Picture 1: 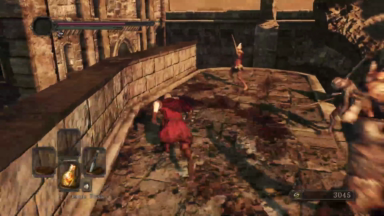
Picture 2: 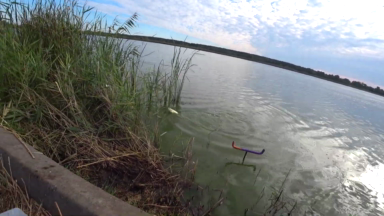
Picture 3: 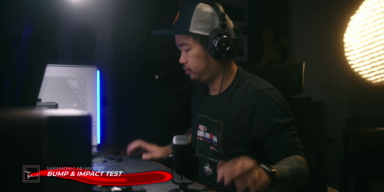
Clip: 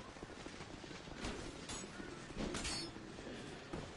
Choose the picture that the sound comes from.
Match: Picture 1